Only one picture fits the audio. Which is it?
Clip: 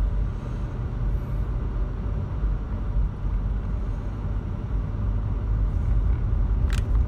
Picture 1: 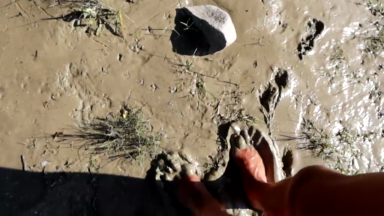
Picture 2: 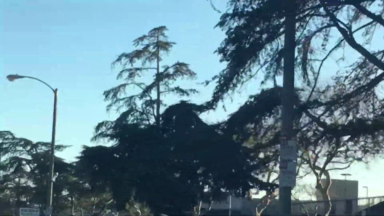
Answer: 2